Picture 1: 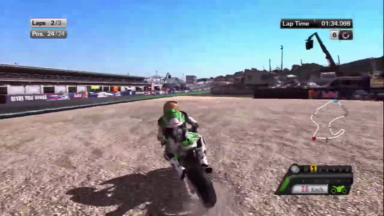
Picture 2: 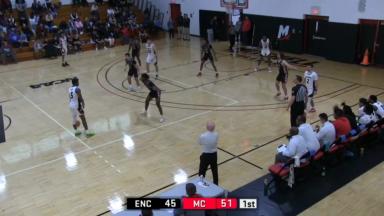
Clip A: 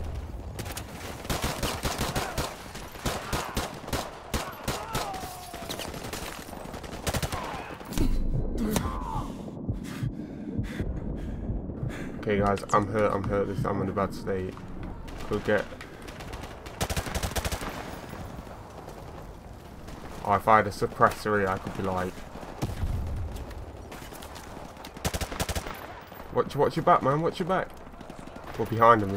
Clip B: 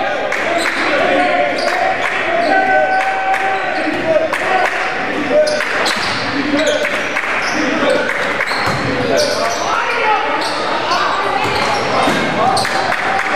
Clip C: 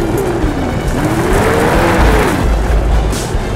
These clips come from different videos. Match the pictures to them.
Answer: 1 C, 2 B